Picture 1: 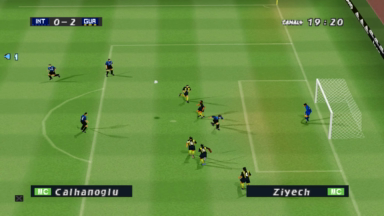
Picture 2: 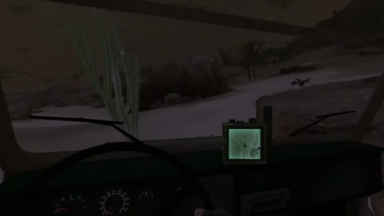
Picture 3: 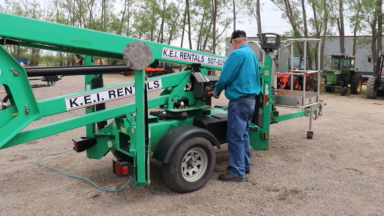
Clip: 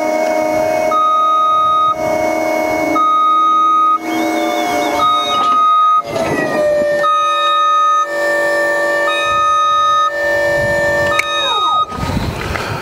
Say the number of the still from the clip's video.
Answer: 3